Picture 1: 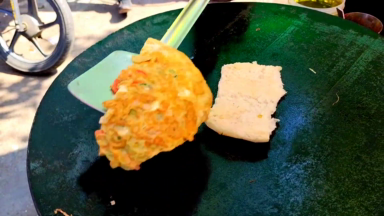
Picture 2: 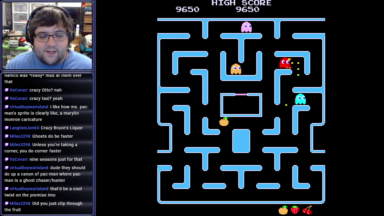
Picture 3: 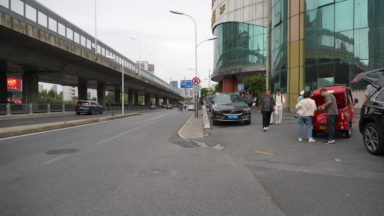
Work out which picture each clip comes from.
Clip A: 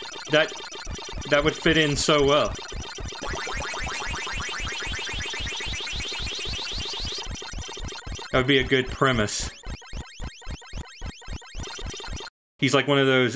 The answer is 2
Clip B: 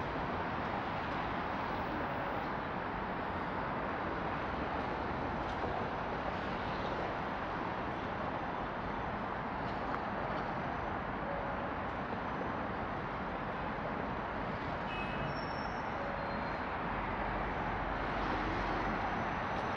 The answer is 3